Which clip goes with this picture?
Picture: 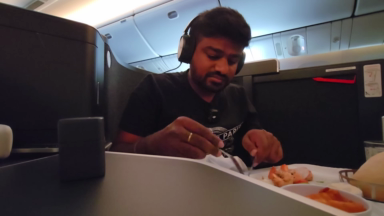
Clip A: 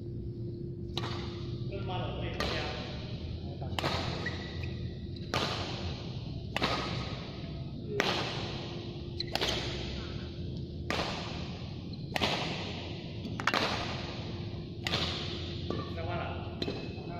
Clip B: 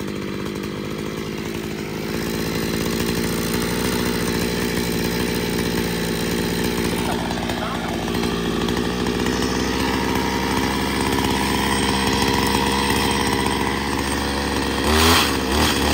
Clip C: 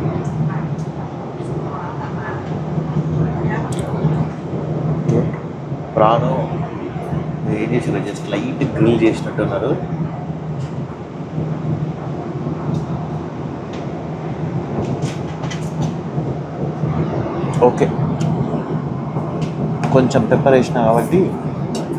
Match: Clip C